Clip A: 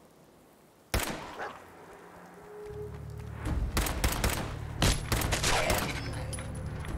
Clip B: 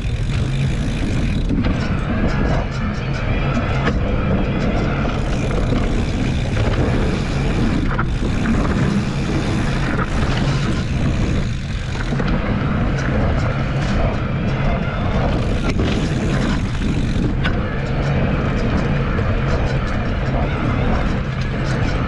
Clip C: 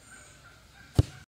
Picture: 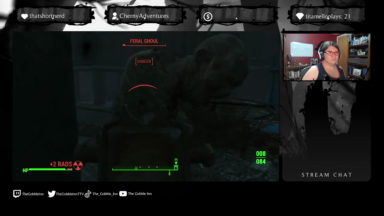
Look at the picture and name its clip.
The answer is A